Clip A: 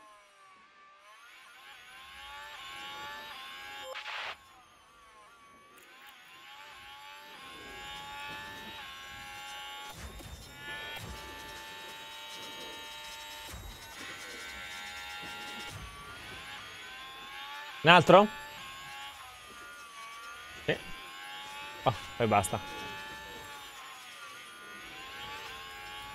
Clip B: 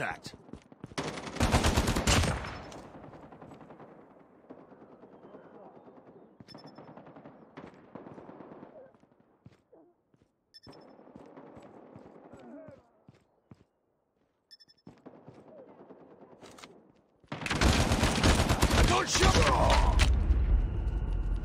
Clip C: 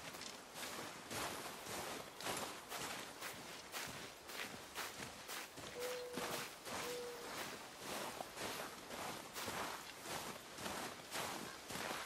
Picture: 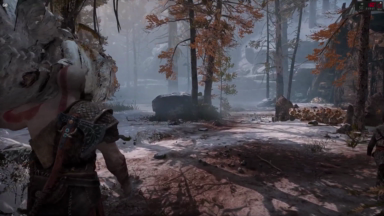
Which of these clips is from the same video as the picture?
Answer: C